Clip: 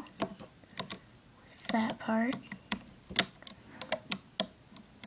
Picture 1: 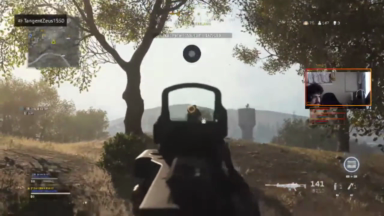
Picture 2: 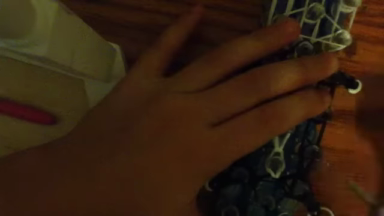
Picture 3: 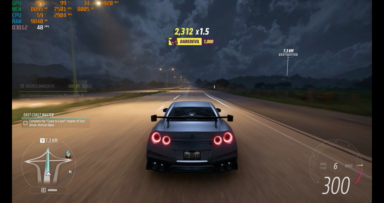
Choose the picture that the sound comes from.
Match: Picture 2